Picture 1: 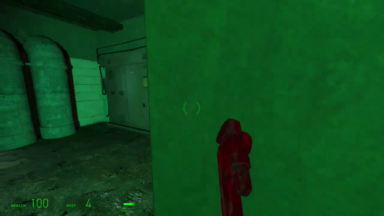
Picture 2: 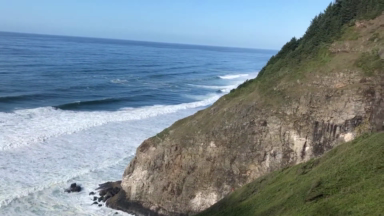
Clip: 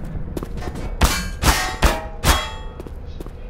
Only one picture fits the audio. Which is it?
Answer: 1